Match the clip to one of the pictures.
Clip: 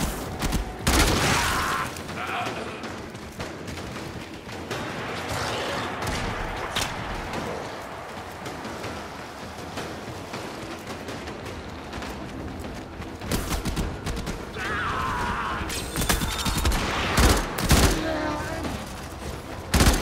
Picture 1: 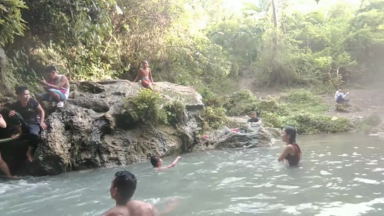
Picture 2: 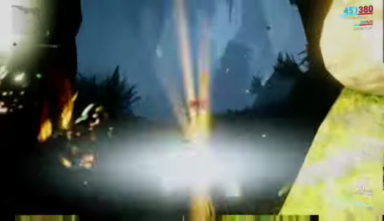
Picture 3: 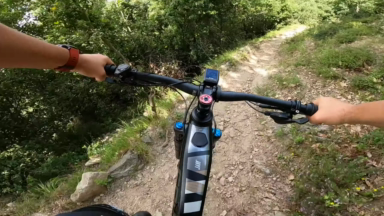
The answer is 2